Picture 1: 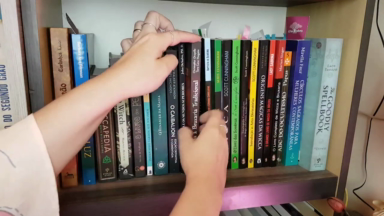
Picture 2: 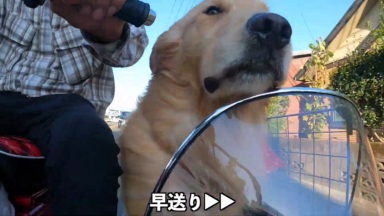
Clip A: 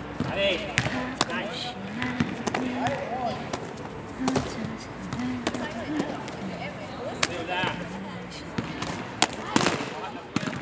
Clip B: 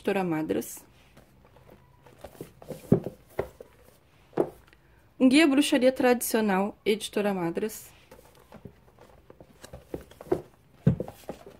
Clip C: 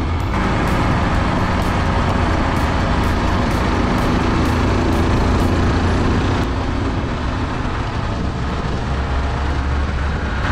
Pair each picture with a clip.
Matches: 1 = B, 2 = C